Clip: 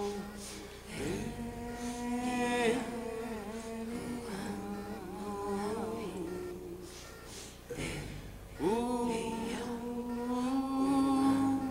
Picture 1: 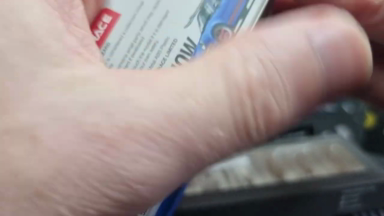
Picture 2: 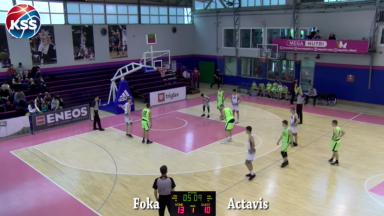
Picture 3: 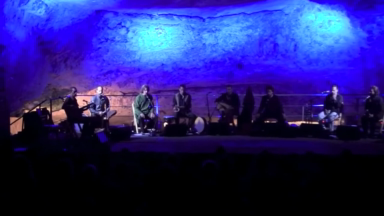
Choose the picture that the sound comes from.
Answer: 3